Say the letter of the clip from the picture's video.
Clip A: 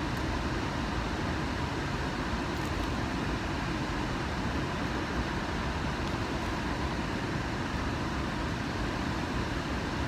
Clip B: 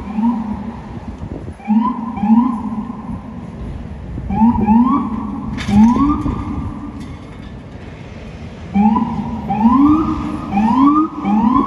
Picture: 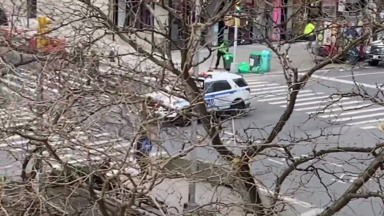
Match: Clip B